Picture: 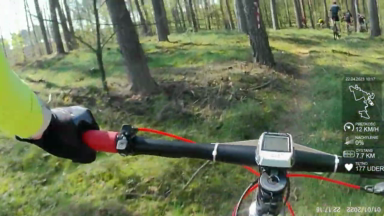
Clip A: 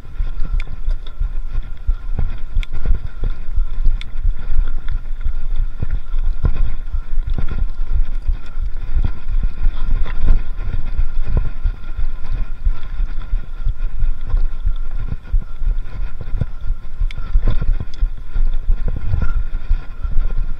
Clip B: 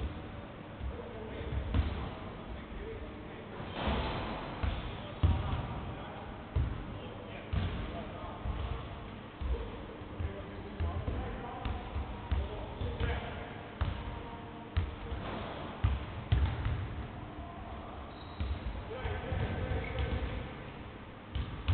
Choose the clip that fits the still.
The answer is A